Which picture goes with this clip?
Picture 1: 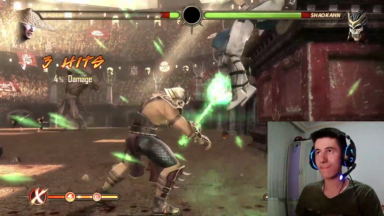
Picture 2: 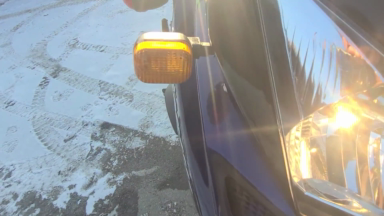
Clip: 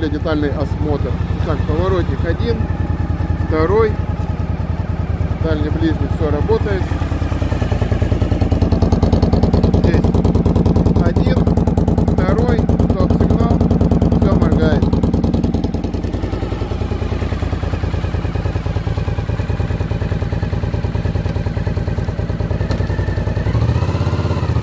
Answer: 2